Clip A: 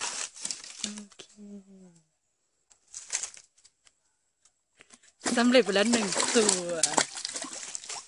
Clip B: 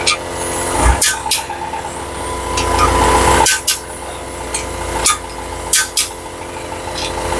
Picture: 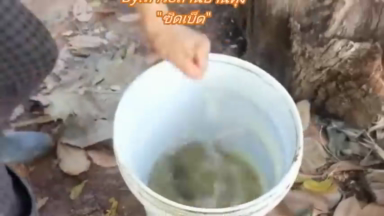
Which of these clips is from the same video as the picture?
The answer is A